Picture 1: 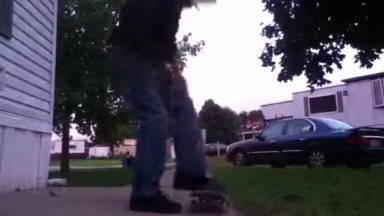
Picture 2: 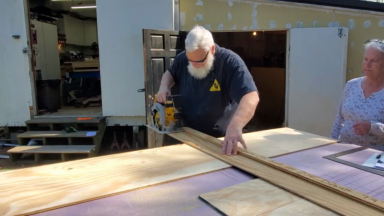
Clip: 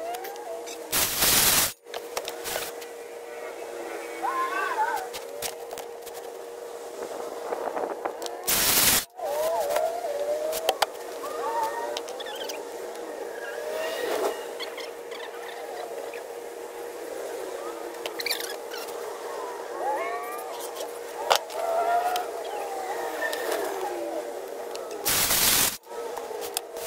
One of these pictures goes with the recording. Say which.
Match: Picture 2